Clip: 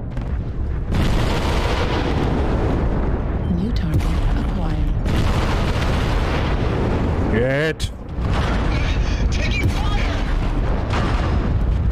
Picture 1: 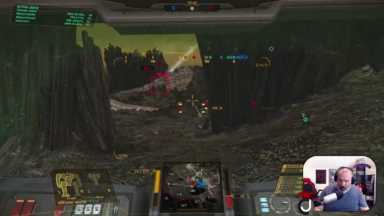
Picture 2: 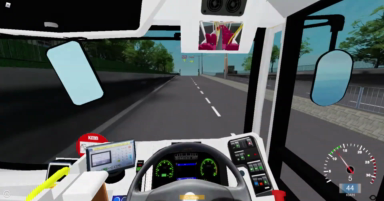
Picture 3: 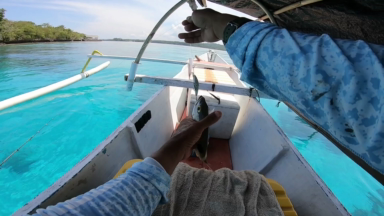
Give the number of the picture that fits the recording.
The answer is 1